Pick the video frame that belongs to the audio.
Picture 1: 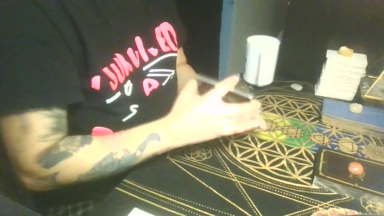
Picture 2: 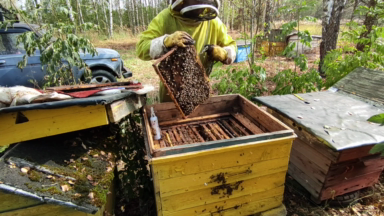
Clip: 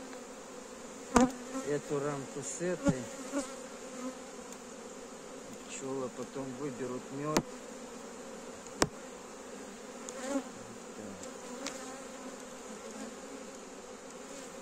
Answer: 2